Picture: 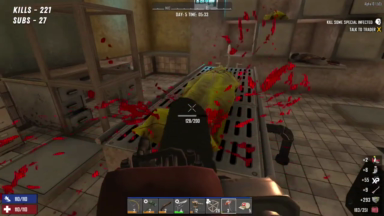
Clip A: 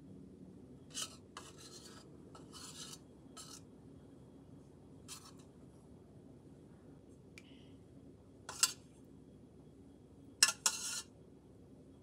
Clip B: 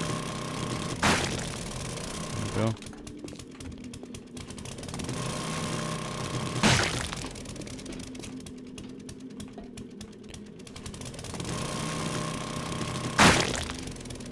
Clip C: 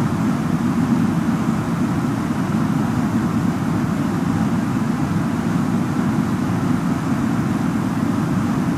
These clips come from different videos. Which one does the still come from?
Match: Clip B